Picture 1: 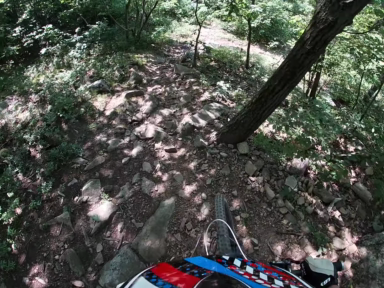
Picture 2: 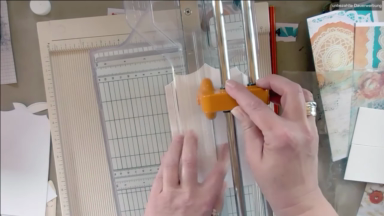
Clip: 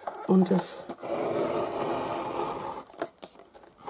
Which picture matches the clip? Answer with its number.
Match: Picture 2